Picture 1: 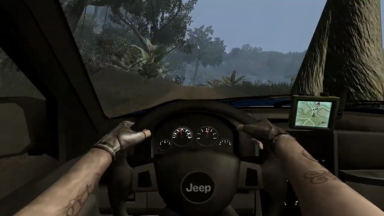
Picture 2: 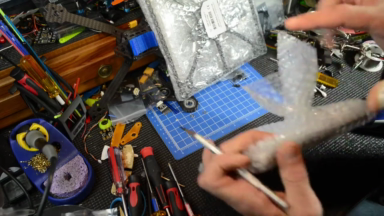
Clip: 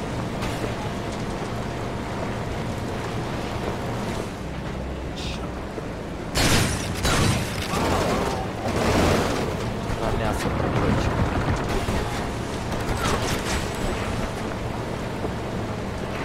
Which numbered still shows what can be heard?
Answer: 1